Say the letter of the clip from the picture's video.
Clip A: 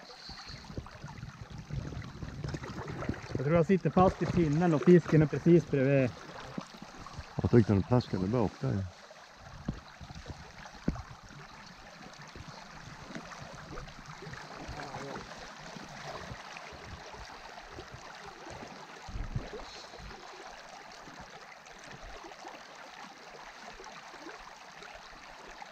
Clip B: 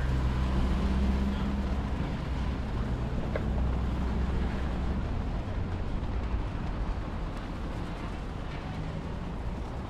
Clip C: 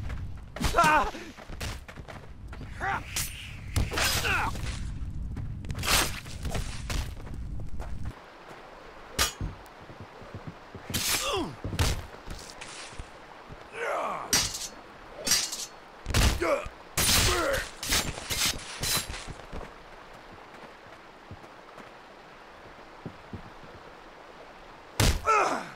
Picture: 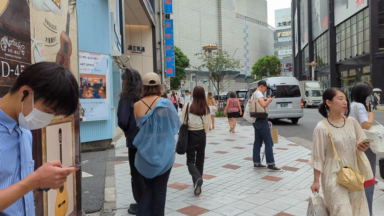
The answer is B